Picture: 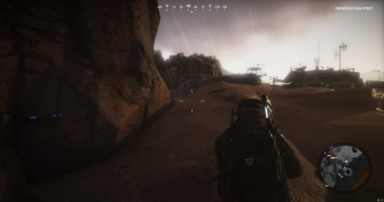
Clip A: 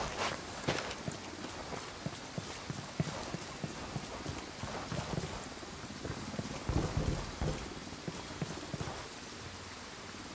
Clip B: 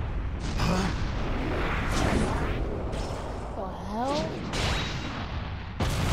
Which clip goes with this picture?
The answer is A